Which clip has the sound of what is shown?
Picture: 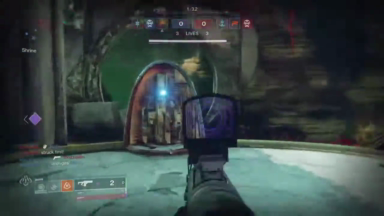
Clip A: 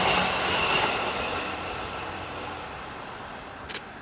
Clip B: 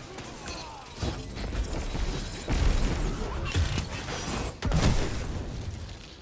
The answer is B